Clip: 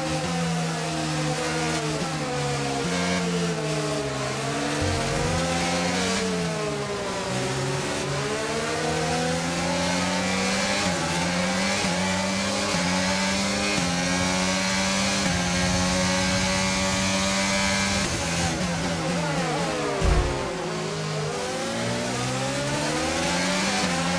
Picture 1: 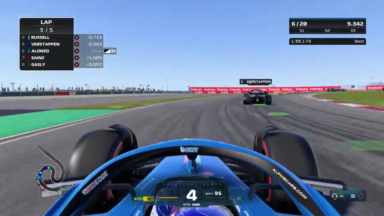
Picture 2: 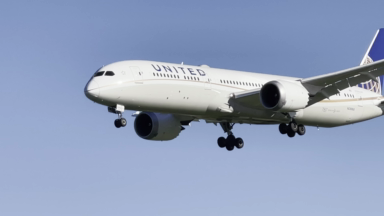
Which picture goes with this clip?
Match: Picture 1